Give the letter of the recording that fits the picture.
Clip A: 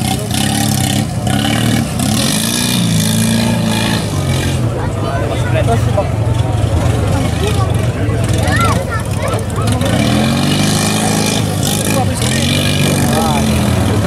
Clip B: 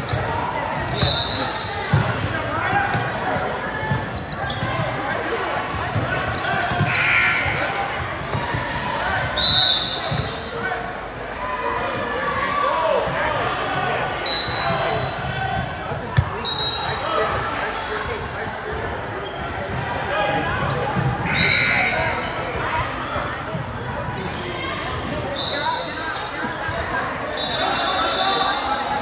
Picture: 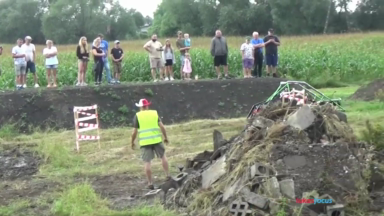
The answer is A